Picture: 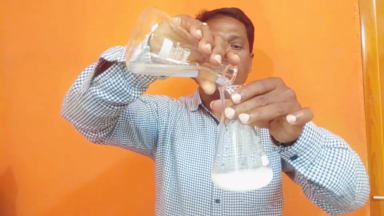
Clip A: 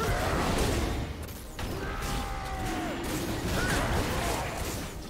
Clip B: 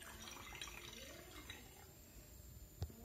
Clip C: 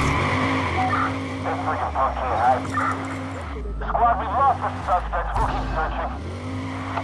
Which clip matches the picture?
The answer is B